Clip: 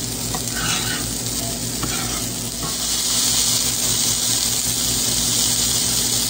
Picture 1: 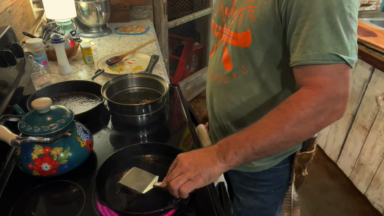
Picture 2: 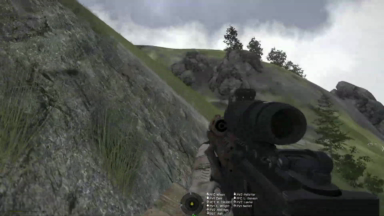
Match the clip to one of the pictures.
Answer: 1